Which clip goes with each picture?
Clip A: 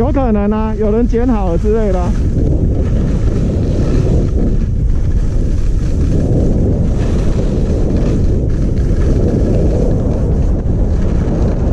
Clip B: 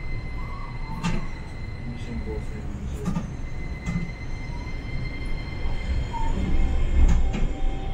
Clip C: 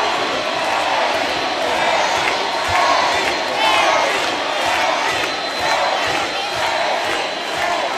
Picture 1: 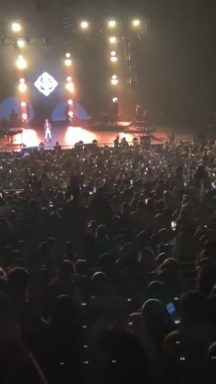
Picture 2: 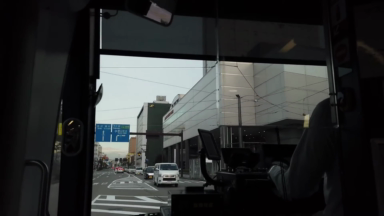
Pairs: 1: C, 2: B